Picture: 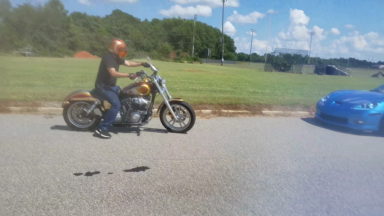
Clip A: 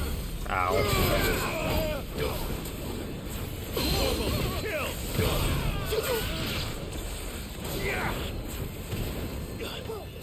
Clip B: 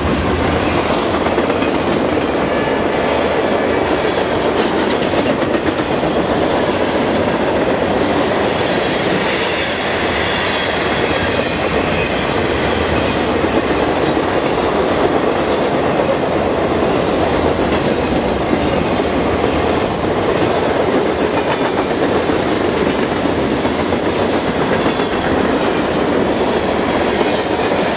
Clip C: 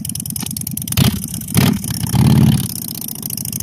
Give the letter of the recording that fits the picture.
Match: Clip C